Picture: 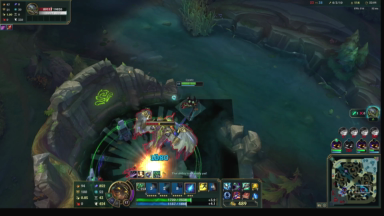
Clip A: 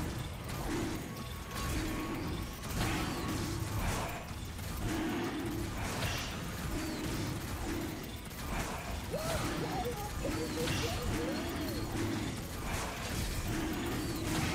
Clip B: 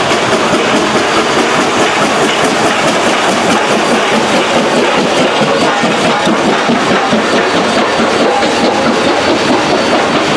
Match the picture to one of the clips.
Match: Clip A